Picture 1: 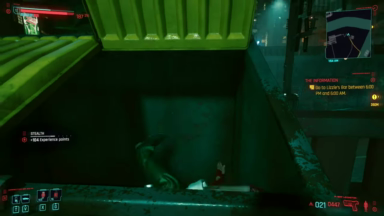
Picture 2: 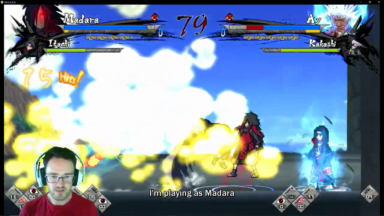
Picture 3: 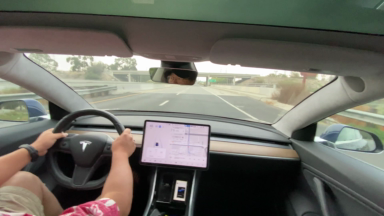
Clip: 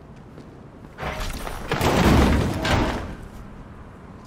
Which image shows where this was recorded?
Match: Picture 1